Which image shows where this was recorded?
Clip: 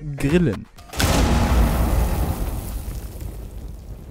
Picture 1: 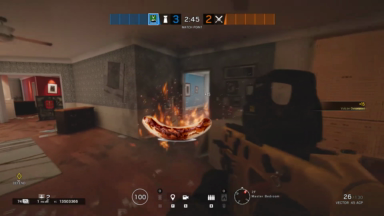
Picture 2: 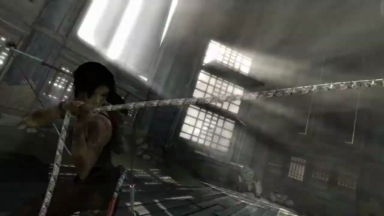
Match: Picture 1